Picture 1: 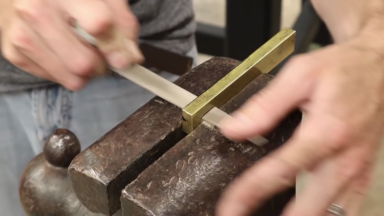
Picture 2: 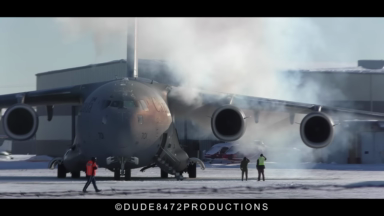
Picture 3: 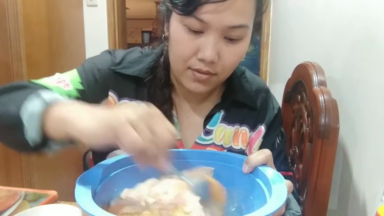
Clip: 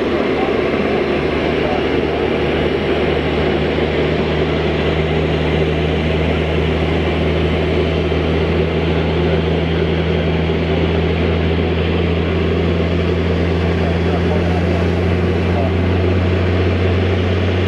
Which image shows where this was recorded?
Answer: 2